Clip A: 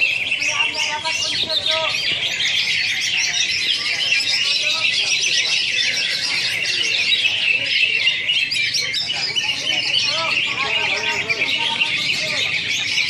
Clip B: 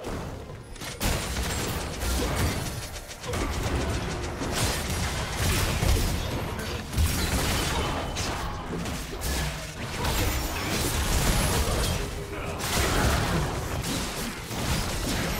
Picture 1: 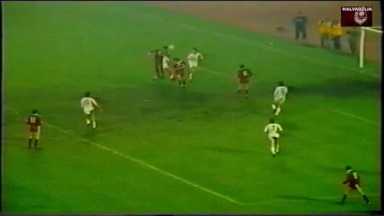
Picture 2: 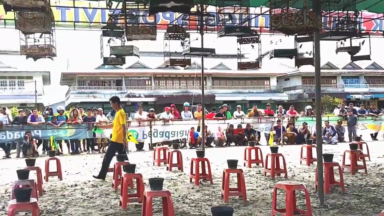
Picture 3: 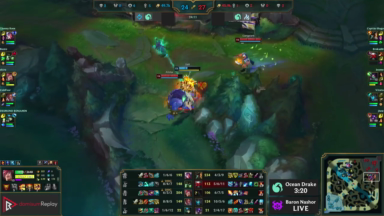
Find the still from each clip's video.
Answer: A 2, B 3